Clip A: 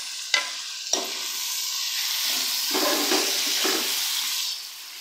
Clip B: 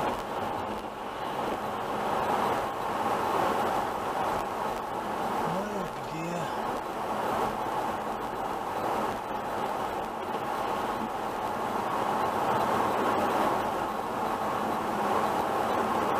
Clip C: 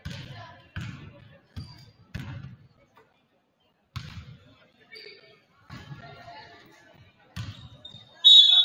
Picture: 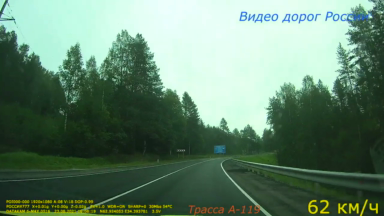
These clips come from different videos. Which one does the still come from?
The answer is B